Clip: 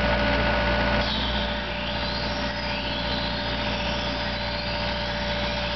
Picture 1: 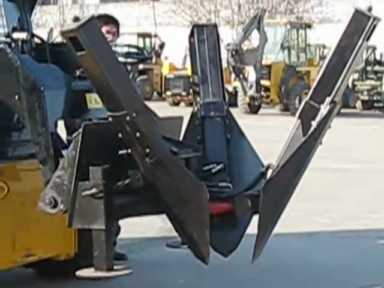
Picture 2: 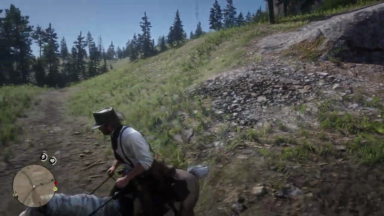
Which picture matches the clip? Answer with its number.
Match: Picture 1